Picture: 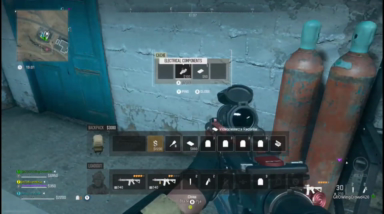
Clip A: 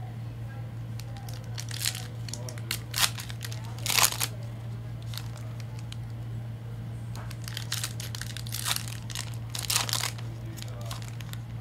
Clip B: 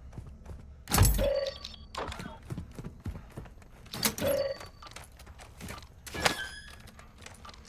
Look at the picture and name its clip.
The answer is B